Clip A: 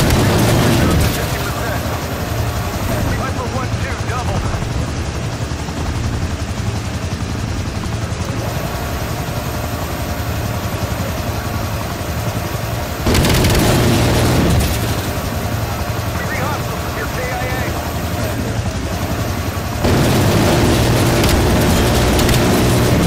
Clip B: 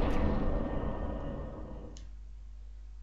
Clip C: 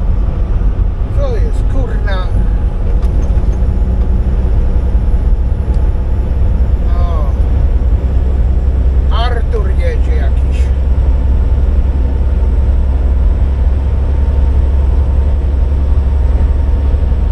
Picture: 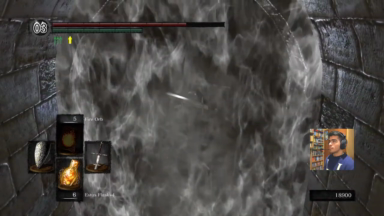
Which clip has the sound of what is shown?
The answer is B